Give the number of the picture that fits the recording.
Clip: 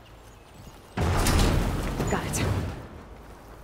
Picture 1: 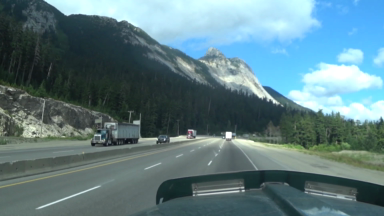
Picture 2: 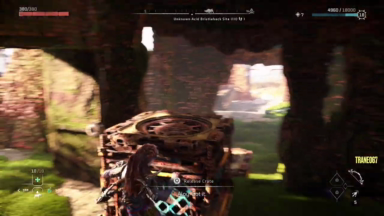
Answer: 2